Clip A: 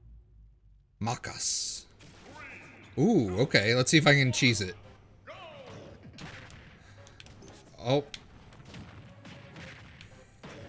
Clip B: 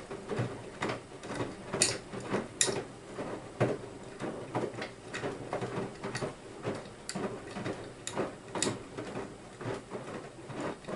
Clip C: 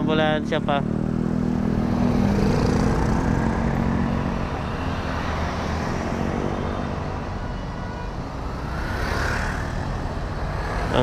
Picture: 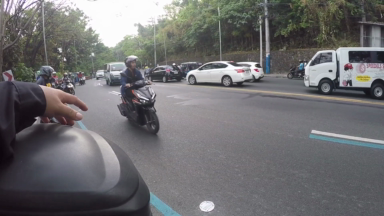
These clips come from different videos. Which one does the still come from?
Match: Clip C